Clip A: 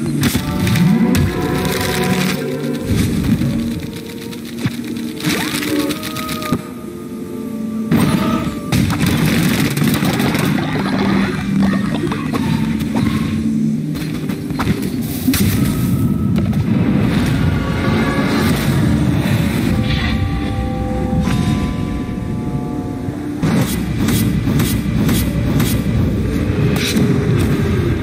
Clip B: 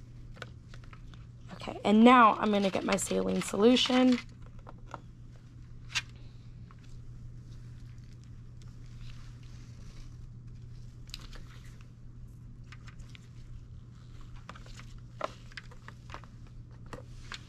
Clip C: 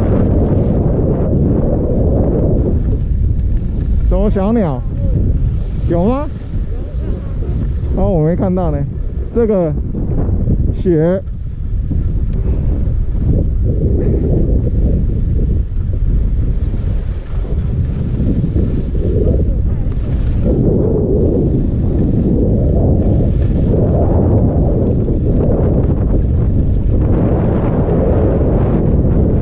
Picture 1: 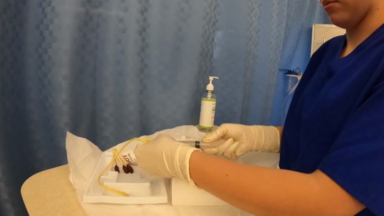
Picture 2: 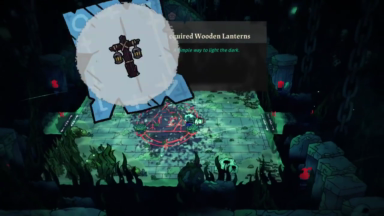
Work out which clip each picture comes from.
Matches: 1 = B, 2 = A